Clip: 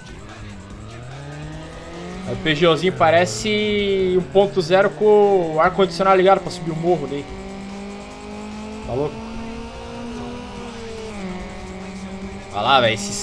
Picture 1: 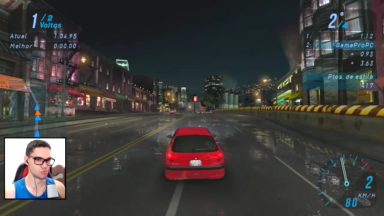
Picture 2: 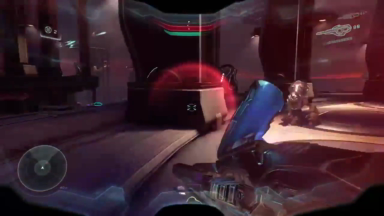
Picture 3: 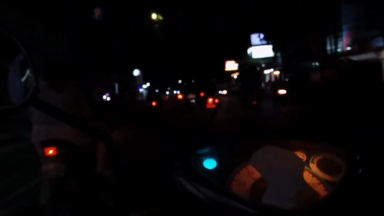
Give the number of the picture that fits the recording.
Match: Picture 1